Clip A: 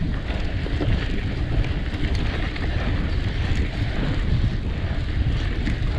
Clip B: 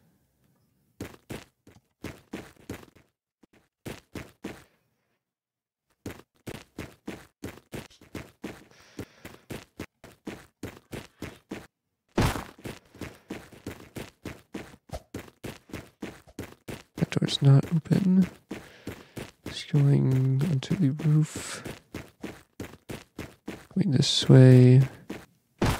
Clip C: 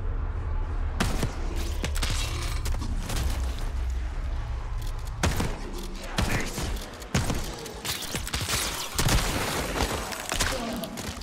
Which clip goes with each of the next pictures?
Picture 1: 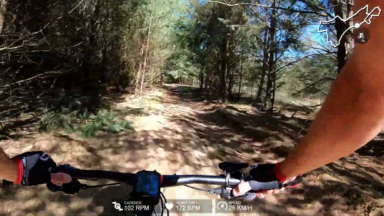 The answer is A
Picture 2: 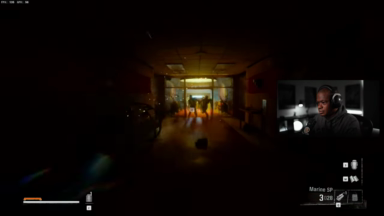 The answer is C